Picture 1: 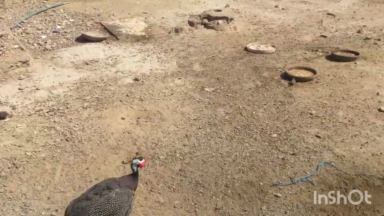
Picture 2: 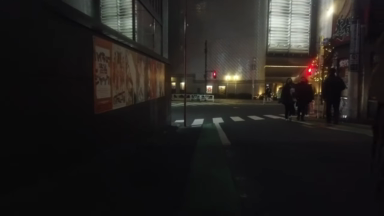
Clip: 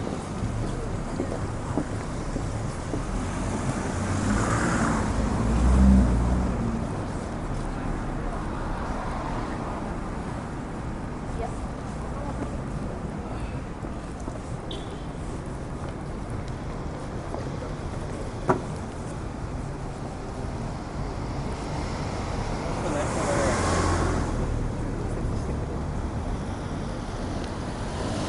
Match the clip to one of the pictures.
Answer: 2